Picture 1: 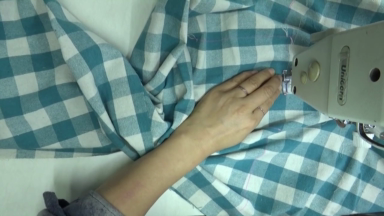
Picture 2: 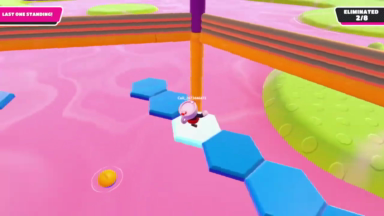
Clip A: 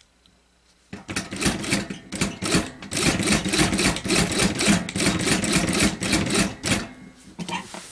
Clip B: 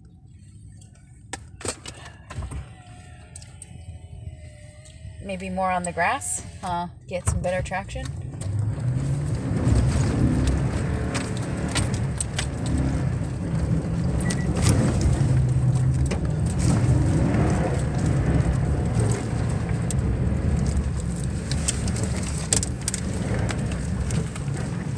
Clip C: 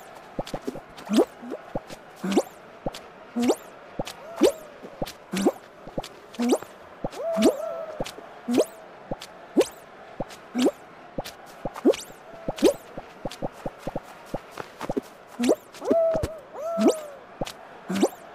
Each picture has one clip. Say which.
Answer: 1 A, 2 C